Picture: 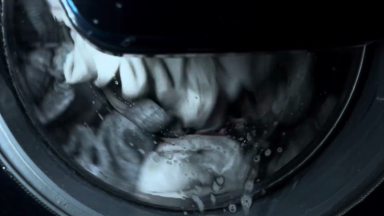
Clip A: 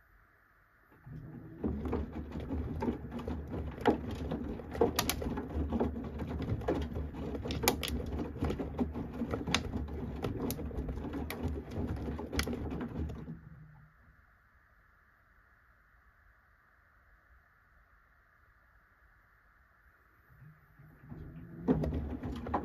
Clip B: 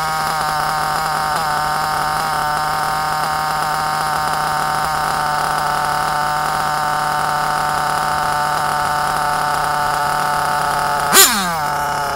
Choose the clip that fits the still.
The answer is A